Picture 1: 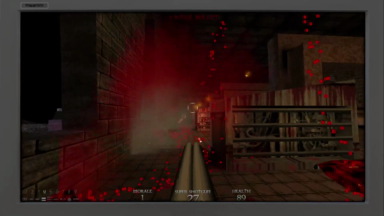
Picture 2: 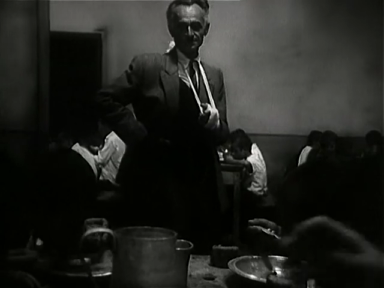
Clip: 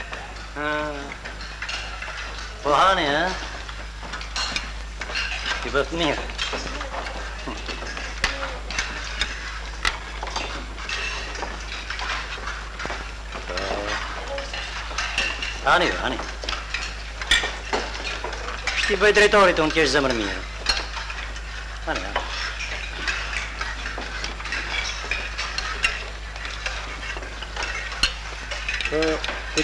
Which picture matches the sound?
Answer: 2